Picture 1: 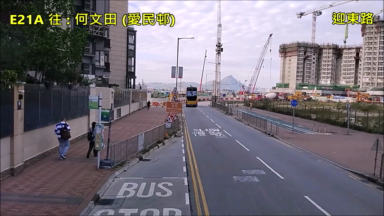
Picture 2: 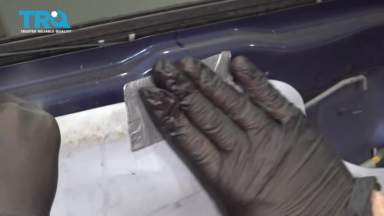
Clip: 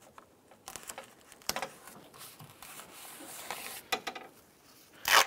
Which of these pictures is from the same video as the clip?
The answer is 2